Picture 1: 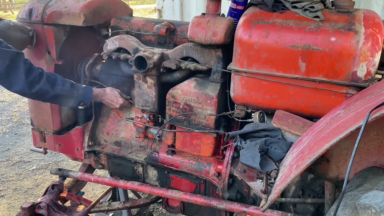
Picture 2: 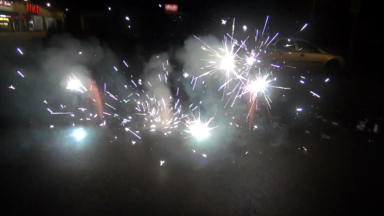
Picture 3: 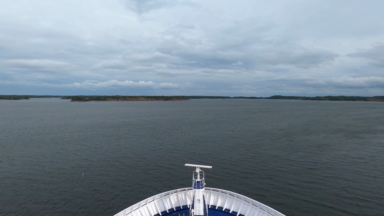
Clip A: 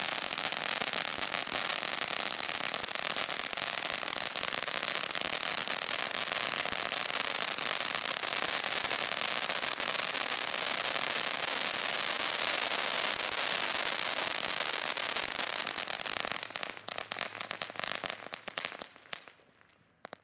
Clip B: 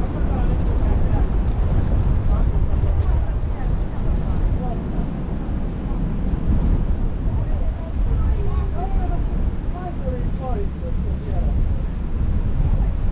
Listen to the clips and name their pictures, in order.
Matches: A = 2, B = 3